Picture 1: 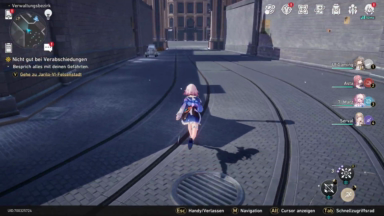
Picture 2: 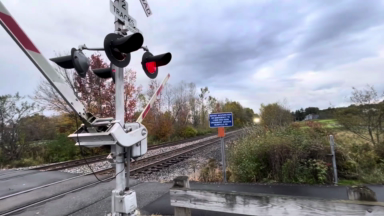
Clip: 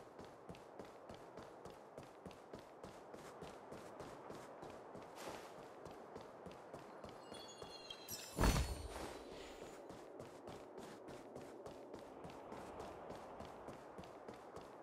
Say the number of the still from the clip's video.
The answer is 1